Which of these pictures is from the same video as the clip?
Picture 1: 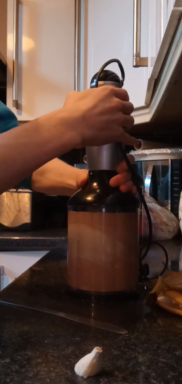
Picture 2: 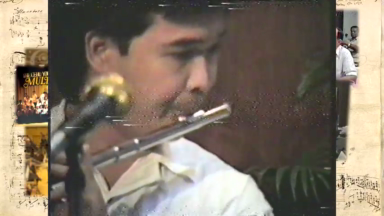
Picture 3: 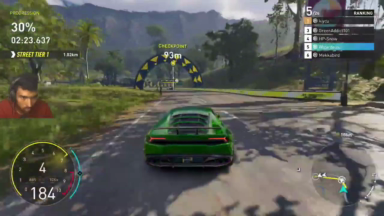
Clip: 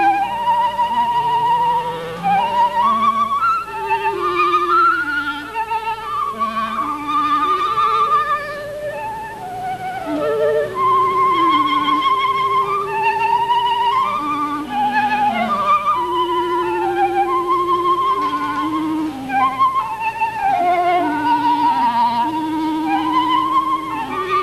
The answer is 2